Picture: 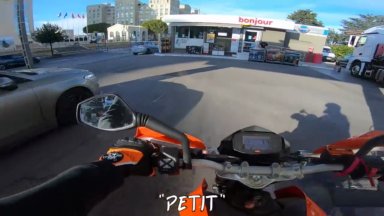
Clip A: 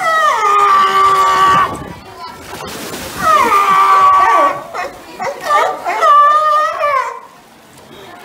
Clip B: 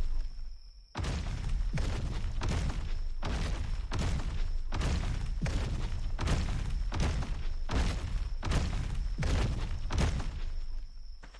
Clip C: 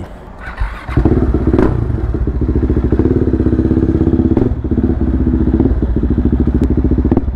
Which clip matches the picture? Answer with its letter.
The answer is C